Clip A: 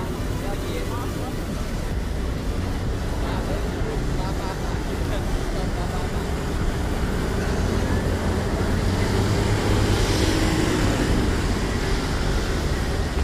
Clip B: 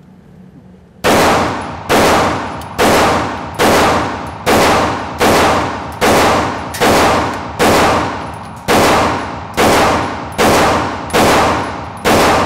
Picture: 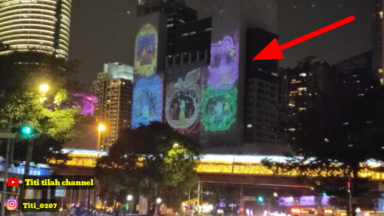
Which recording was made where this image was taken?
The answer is A